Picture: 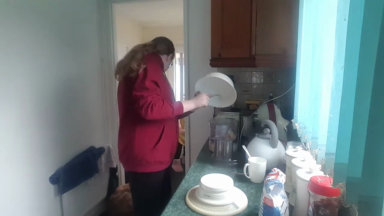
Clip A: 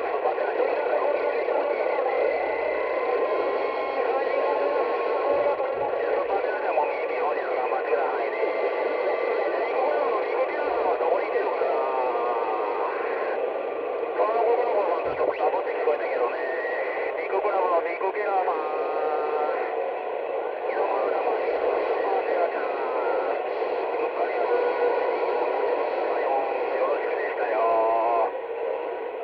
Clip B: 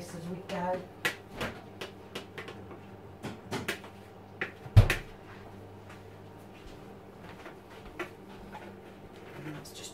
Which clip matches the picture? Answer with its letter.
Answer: B